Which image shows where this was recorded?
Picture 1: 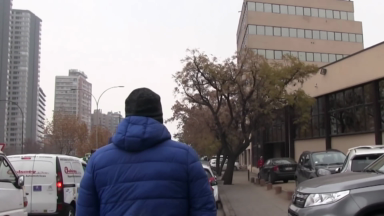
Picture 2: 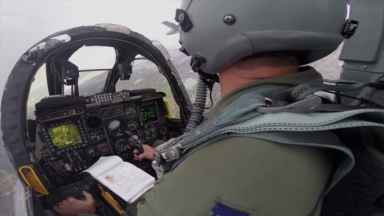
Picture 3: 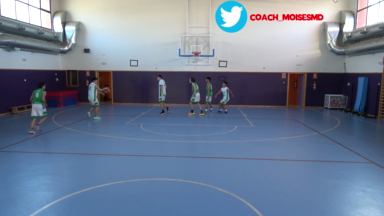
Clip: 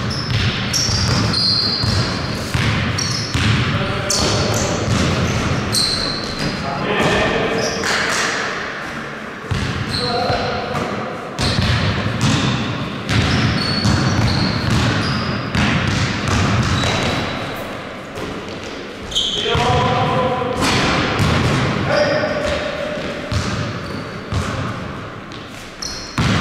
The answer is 3